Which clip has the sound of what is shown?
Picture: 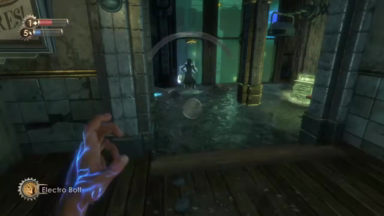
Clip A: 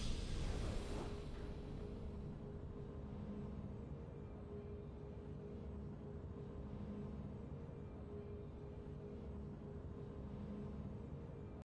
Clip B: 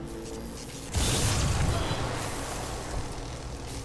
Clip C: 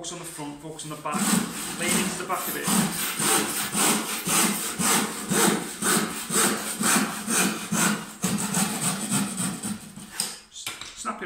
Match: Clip B